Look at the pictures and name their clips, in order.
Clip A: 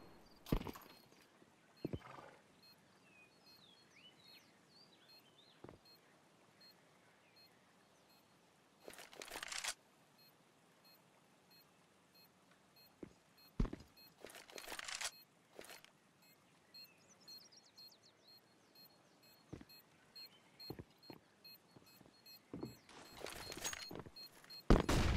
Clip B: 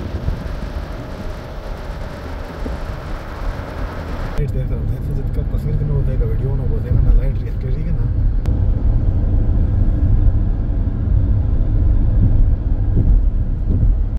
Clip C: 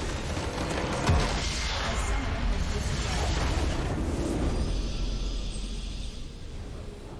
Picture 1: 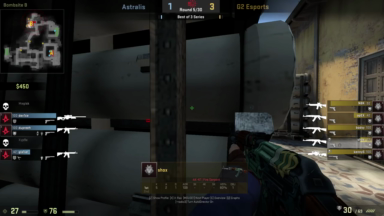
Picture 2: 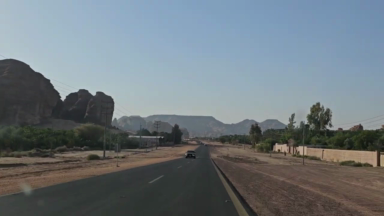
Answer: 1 A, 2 B